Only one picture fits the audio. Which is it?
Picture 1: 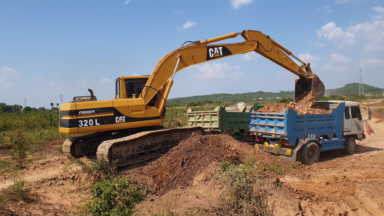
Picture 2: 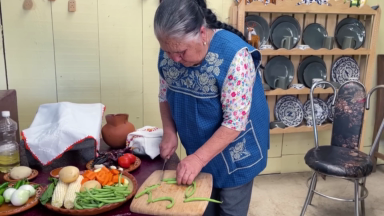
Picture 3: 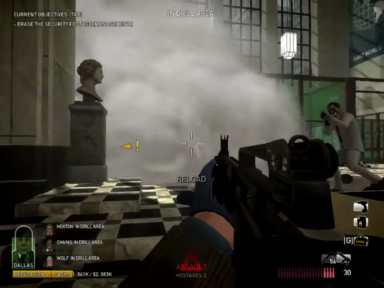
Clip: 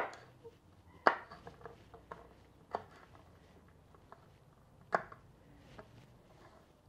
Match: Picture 2